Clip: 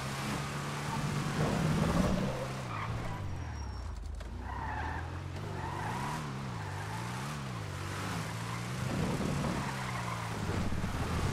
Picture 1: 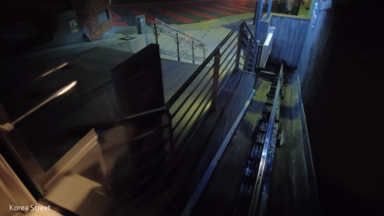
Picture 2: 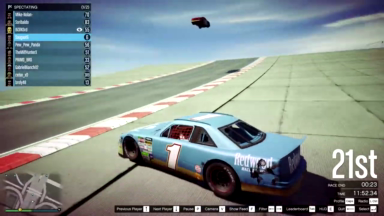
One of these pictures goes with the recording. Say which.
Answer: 2